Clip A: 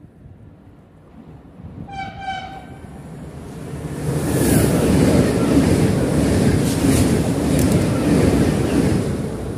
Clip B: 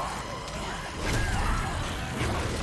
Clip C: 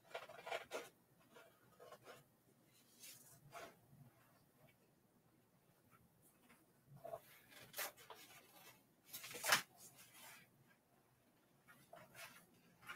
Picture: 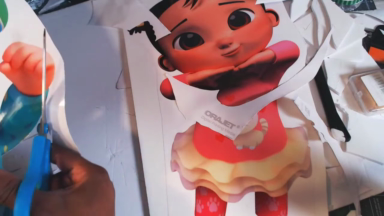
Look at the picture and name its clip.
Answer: C